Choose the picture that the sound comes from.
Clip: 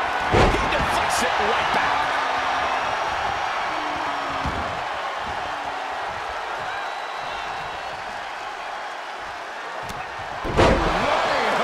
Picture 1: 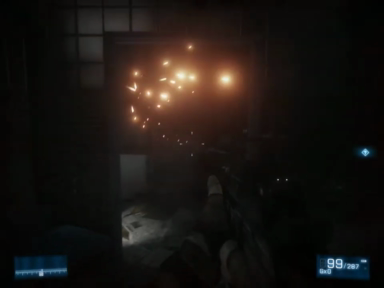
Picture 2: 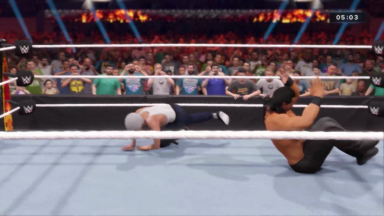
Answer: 2